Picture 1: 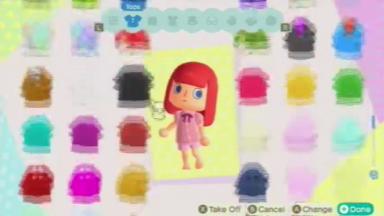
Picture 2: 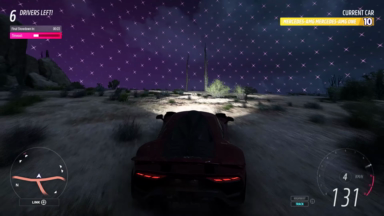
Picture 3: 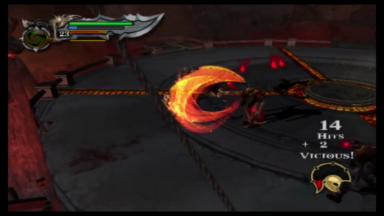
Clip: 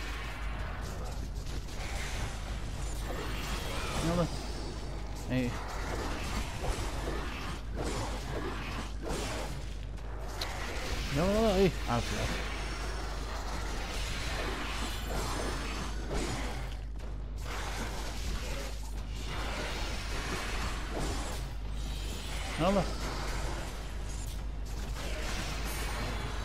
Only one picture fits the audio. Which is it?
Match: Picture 3